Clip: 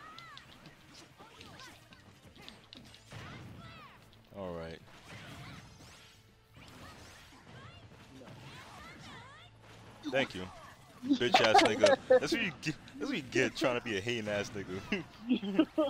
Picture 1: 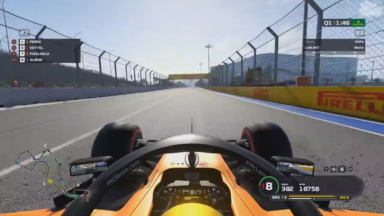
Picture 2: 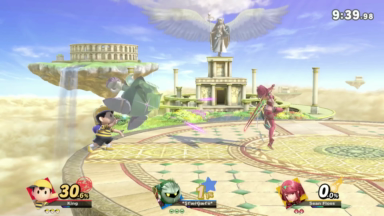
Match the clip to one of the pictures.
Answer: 2